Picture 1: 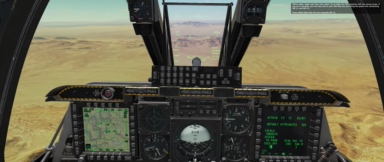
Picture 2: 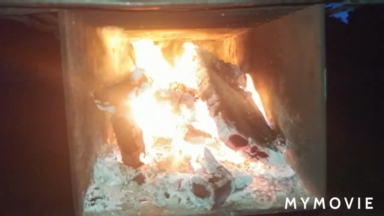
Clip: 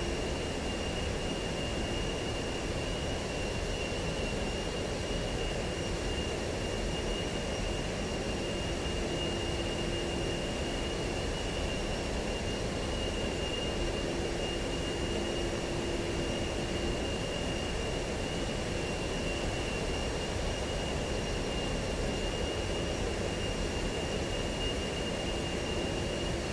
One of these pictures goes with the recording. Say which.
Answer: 1